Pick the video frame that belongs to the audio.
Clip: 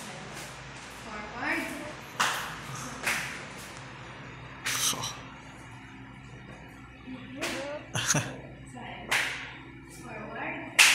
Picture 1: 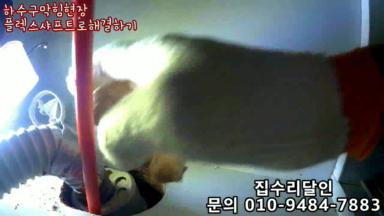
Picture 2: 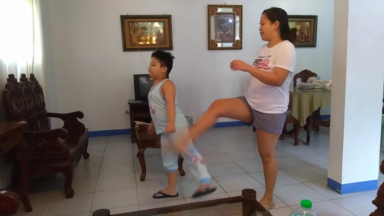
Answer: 2